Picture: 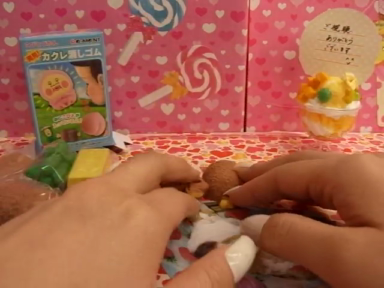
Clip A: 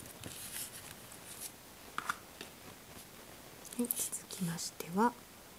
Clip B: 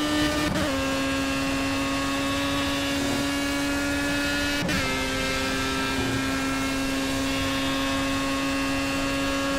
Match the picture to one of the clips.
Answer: A